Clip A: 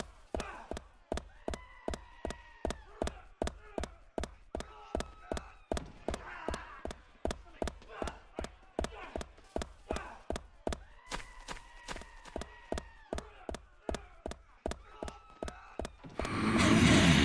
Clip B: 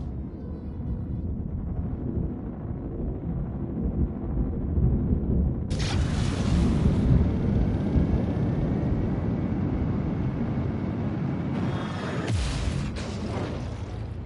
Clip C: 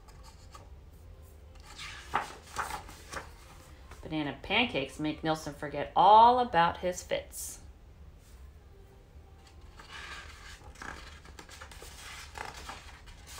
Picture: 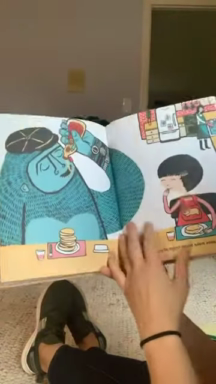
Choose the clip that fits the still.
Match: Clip C